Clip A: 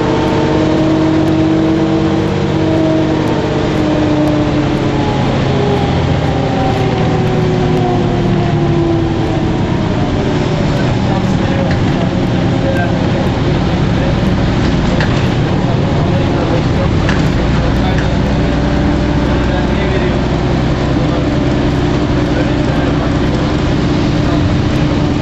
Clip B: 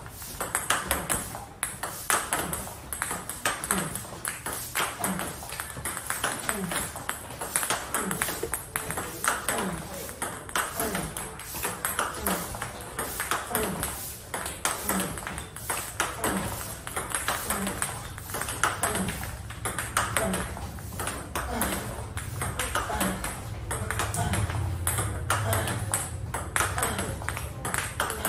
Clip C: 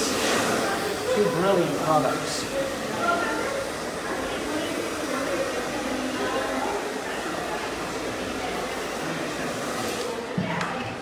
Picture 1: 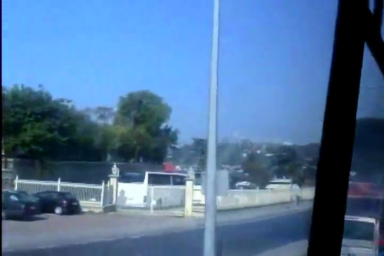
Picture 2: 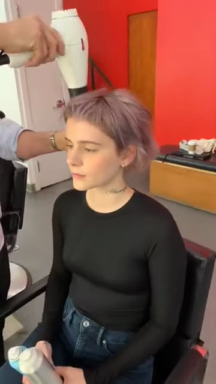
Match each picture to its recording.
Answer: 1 A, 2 C